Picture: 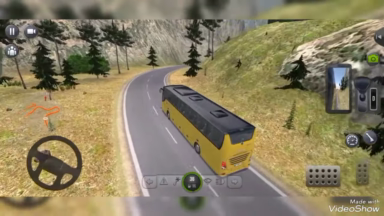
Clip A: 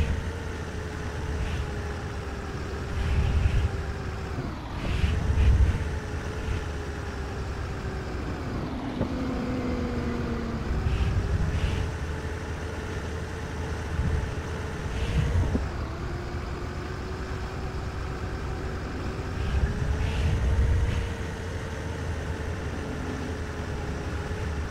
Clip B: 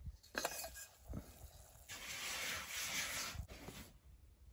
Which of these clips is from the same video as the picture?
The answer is A